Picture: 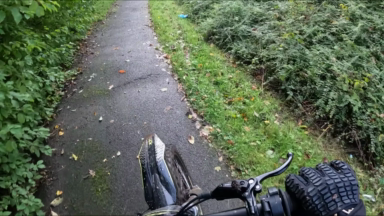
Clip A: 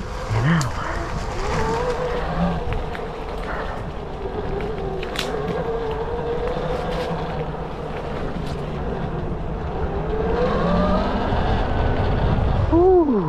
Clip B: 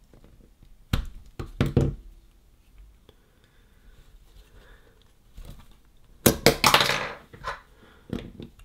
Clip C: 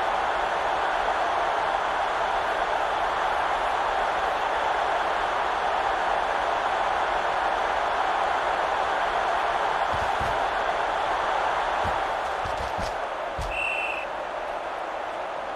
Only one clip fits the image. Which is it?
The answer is A